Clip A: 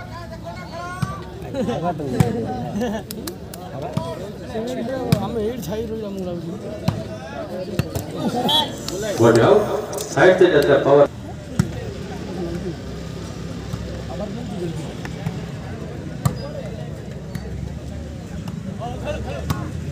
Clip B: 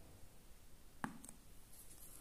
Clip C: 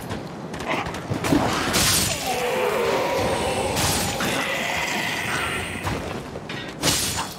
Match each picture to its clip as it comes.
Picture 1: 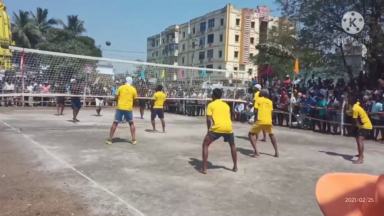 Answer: A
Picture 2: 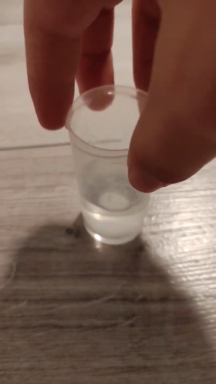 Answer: B